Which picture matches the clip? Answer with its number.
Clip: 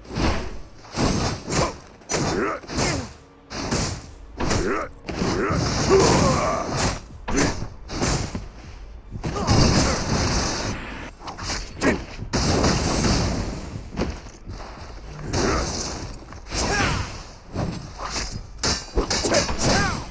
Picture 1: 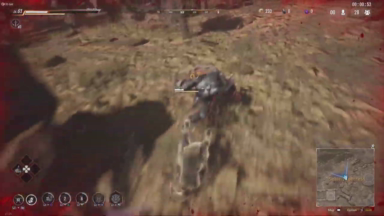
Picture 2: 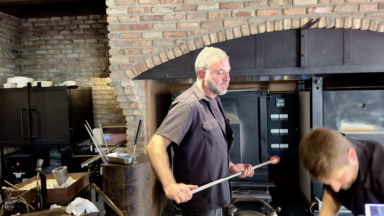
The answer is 1